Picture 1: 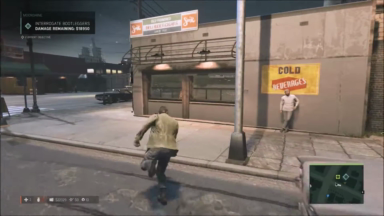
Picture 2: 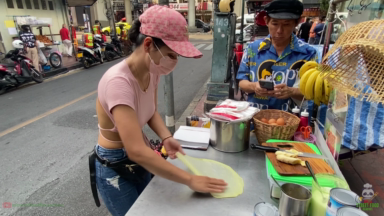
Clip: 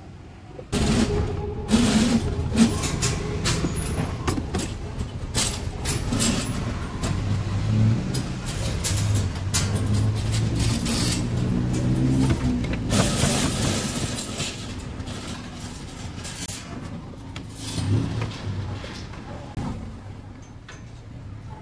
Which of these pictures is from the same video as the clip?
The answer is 2